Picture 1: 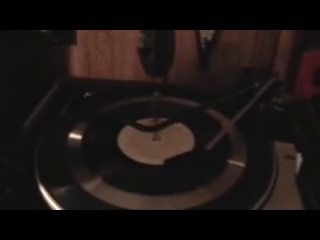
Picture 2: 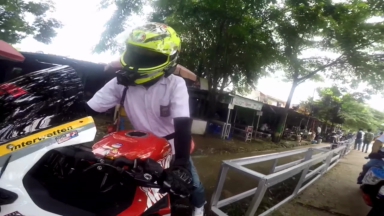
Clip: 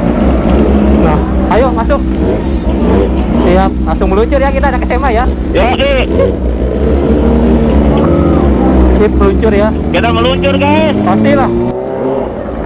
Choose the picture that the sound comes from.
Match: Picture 2